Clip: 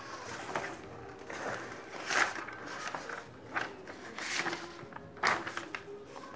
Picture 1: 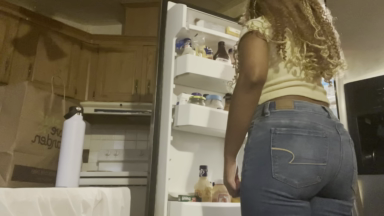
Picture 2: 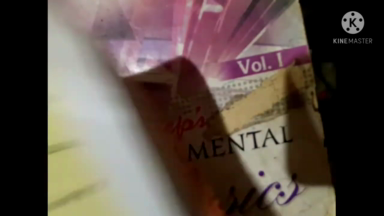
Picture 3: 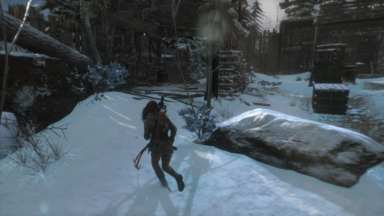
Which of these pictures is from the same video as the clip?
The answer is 2